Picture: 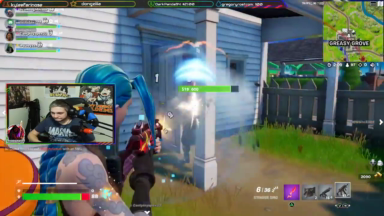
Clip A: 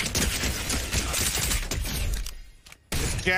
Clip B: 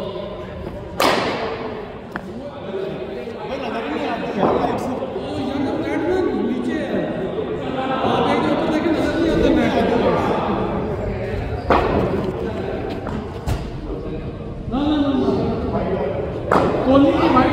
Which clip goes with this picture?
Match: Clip A